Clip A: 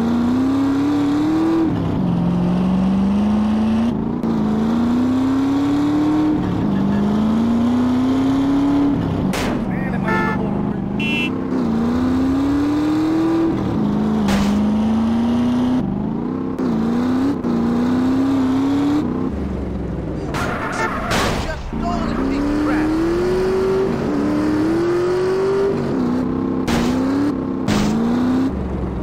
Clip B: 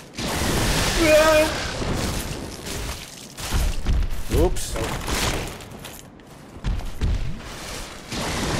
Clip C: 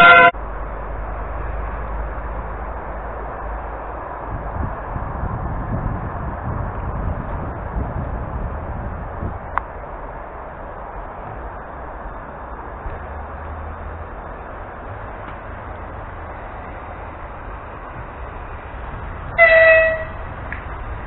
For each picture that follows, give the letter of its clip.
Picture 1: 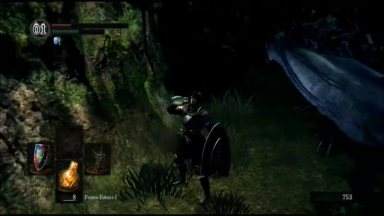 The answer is B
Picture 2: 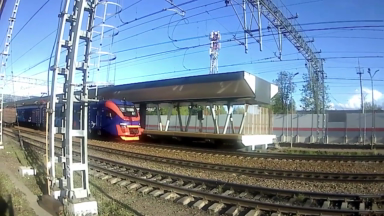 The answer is C